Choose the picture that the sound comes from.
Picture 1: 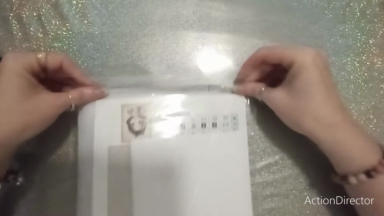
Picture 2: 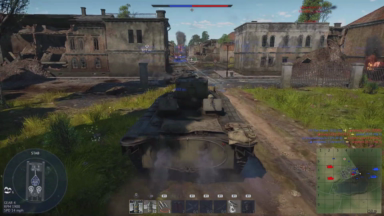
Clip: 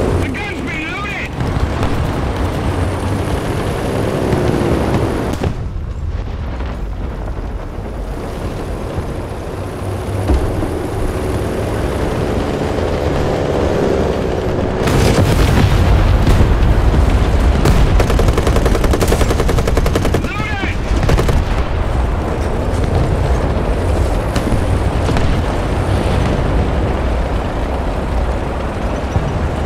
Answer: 2